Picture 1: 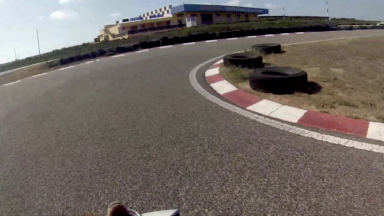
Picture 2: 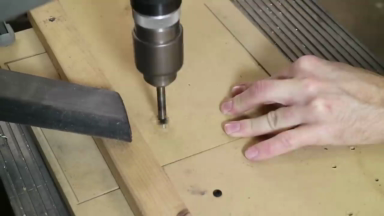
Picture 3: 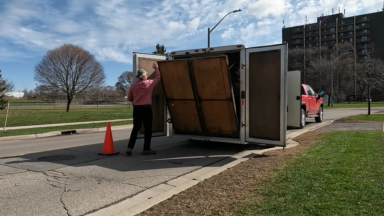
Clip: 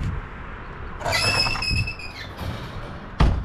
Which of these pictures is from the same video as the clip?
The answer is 3